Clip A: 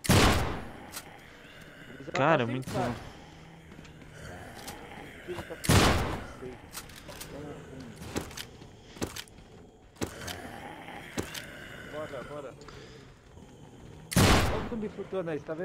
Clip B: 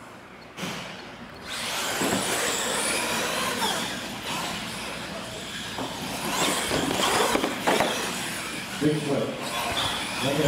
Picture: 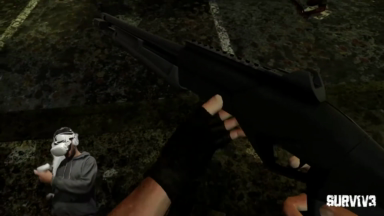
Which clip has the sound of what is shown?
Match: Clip A